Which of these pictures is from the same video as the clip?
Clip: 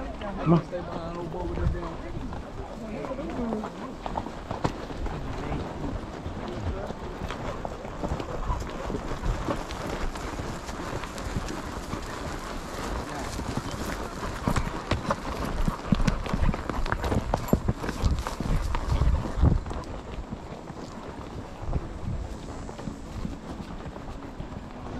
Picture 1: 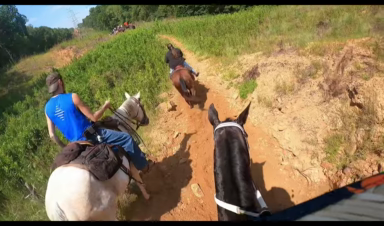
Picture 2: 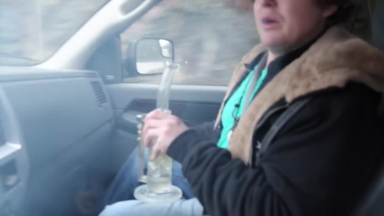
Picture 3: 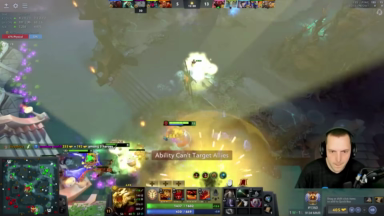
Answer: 1